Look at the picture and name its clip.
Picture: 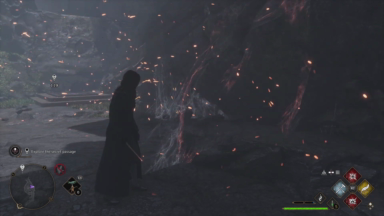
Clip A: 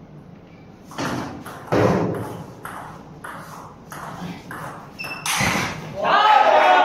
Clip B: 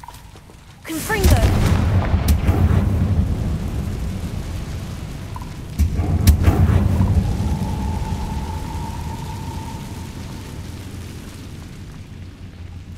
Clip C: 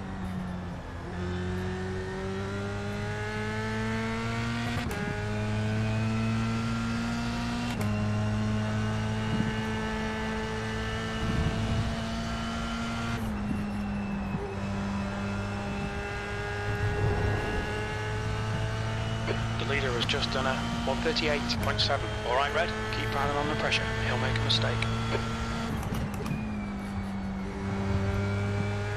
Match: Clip B